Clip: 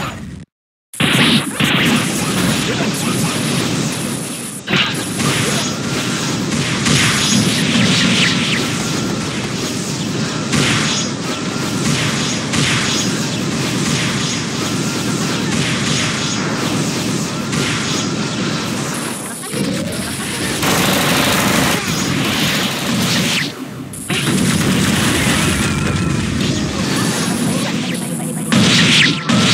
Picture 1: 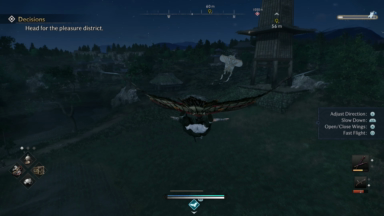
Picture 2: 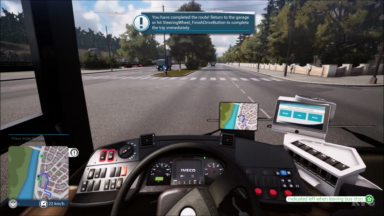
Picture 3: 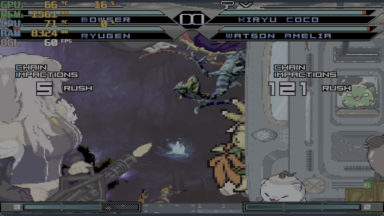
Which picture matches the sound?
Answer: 3